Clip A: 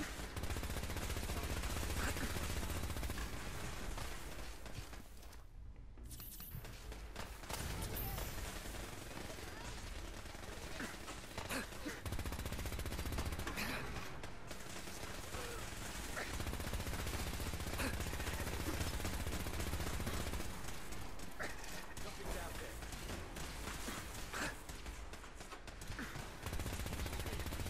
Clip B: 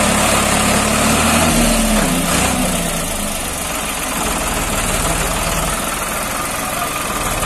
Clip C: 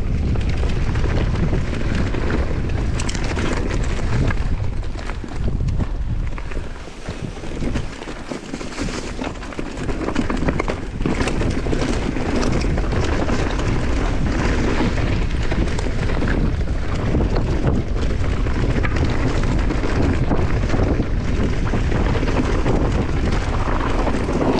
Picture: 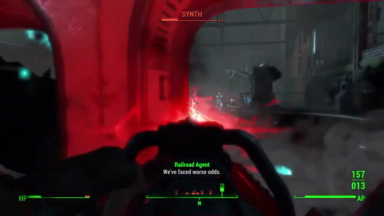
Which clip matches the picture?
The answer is A